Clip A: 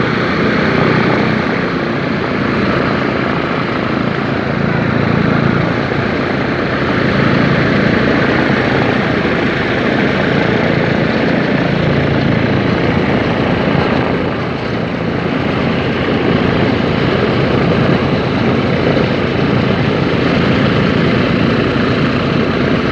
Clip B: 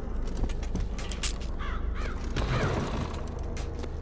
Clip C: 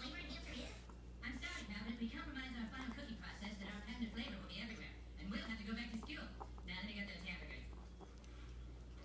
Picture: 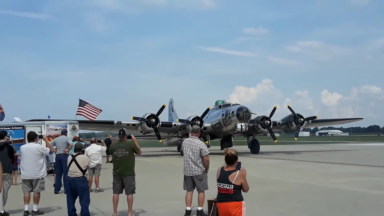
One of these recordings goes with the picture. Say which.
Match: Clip A